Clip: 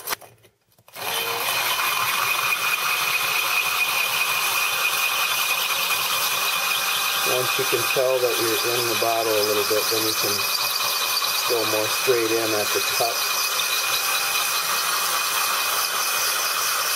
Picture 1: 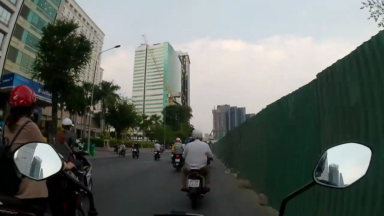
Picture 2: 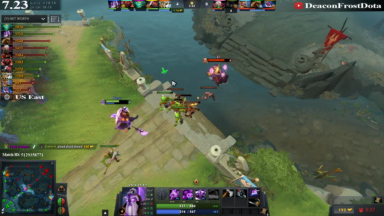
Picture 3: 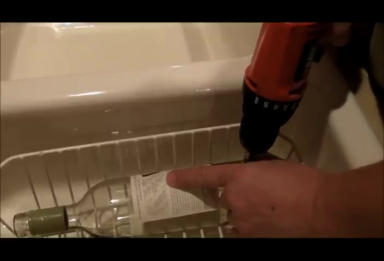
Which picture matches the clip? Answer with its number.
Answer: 3